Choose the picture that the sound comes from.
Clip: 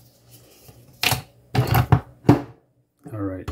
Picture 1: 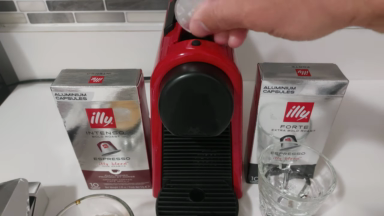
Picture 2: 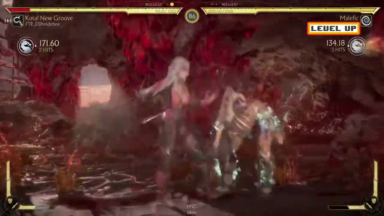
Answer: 1